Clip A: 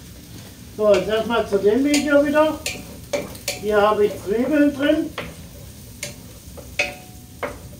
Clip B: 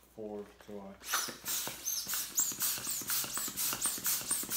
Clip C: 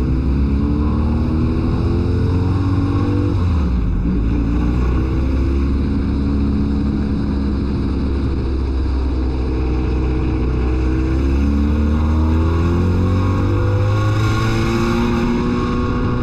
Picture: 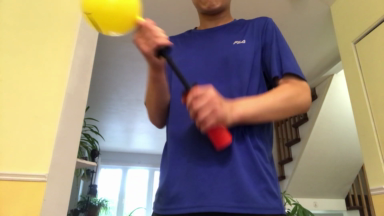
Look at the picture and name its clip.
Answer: B